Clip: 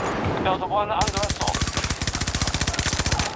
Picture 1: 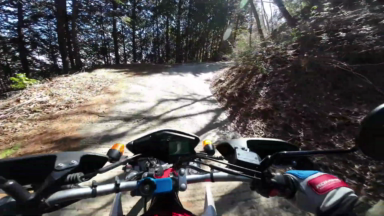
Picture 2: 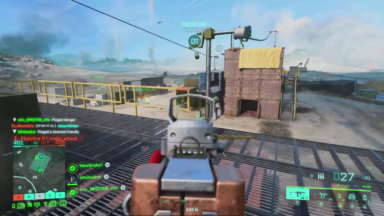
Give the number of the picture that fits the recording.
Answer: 2